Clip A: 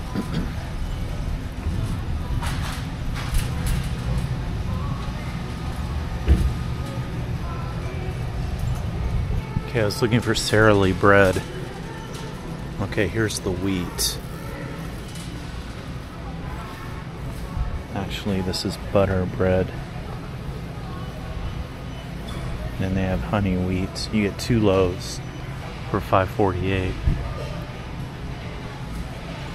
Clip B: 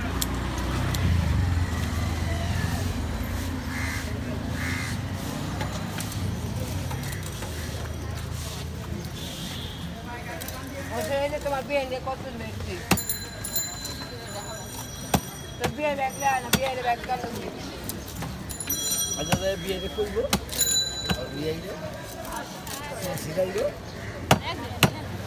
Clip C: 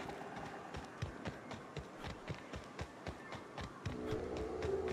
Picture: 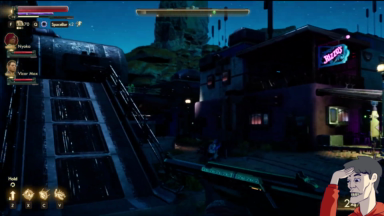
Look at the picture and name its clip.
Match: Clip C